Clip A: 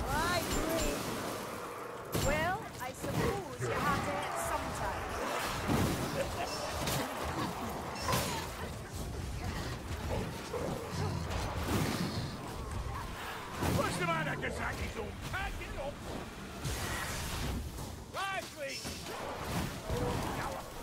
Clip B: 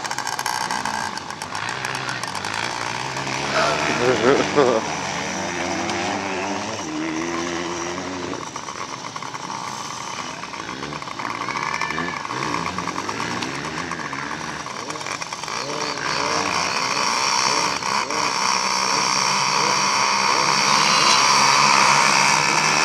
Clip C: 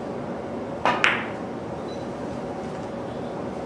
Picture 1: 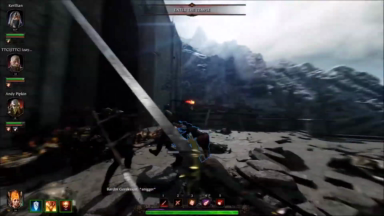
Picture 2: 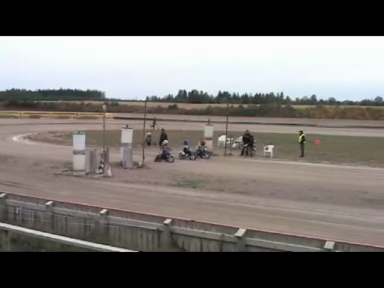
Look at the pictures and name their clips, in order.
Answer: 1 A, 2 B